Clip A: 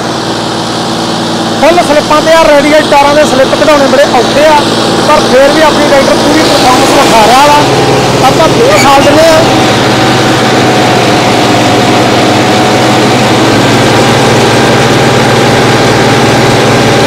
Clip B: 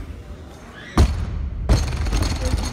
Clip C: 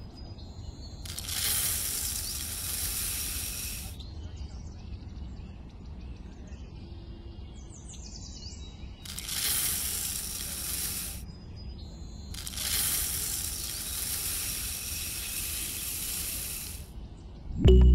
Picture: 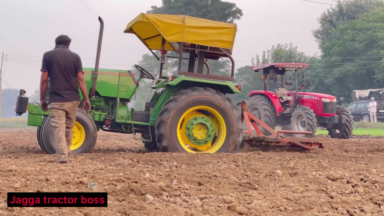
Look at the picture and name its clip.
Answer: A